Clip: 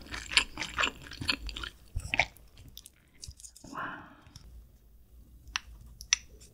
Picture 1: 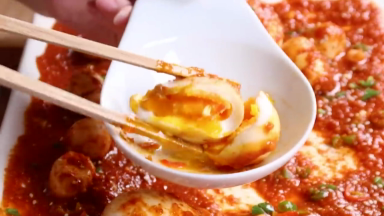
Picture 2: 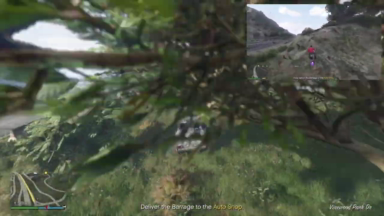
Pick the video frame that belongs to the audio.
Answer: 1